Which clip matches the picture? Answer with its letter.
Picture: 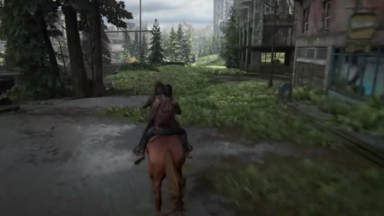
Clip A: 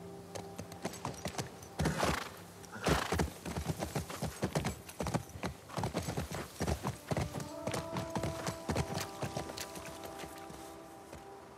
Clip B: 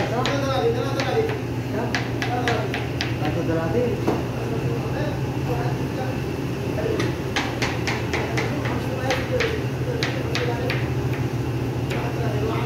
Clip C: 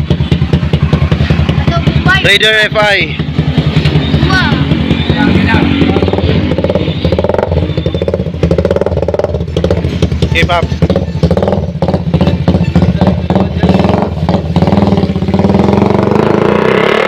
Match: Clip A